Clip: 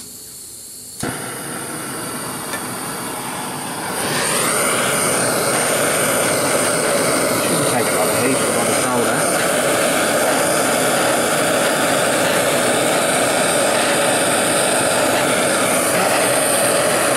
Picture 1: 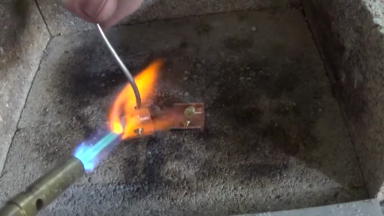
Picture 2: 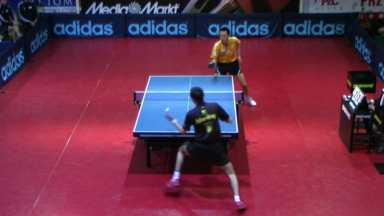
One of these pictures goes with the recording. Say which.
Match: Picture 1